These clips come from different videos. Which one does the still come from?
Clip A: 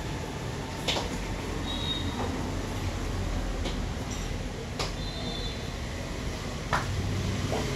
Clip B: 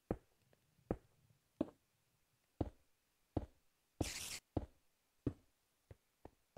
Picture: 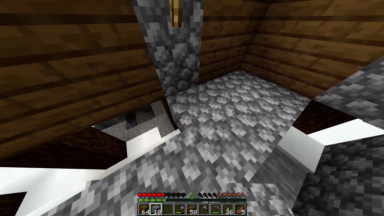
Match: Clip B